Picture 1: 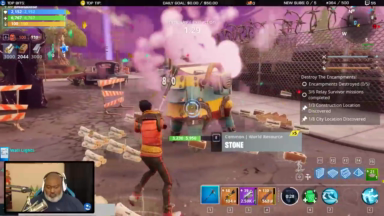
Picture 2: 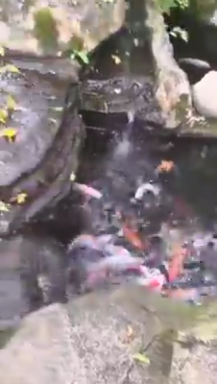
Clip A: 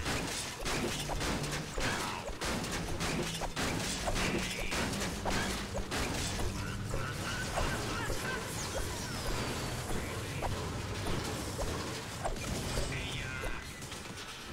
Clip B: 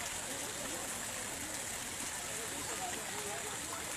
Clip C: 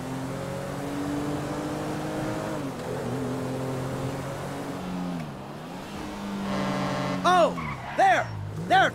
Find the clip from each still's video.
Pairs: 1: A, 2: B